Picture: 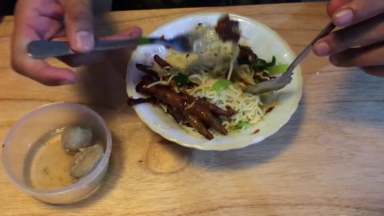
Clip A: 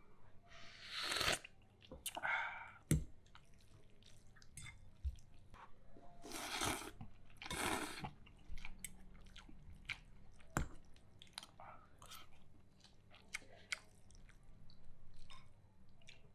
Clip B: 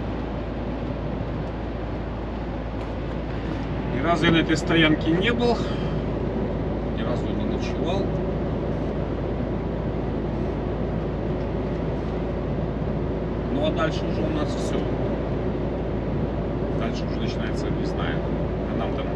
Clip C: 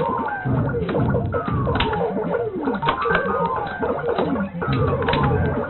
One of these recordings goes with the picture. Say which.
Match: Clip A